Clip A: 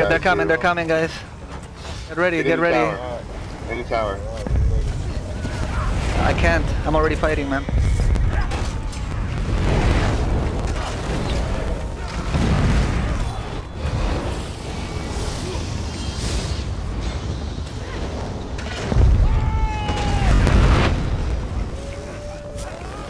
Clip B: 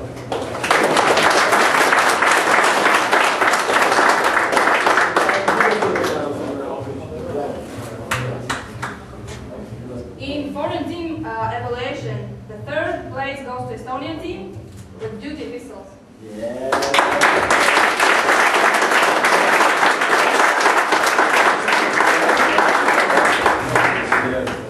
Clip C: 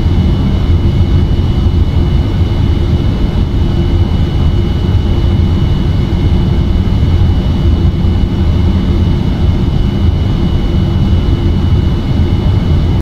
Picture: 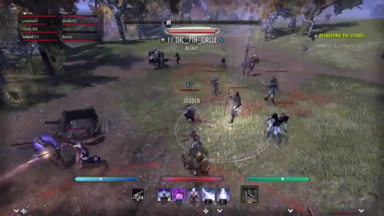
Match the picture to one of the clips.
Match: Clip A